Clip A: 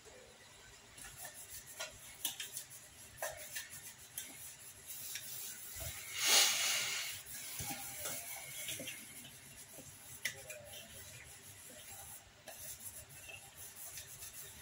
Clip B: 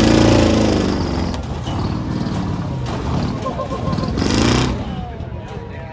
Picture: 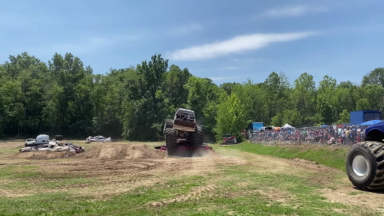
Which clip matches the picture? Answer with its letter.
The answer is B